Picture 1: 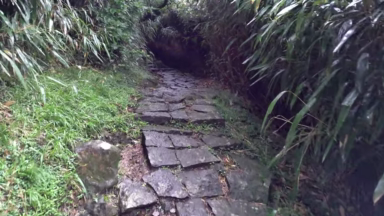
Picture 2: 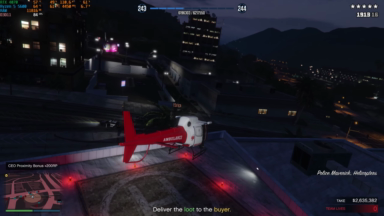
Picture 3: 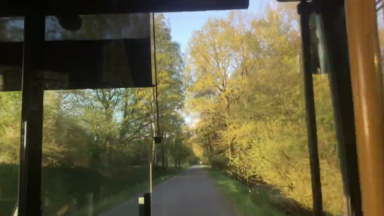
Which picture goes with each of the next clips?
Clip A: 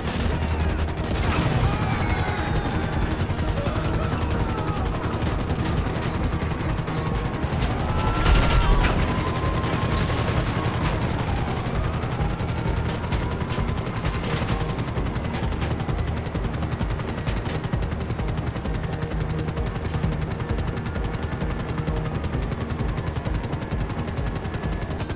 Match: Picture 2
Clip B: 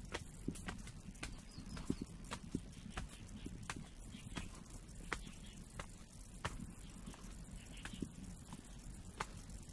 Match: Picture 1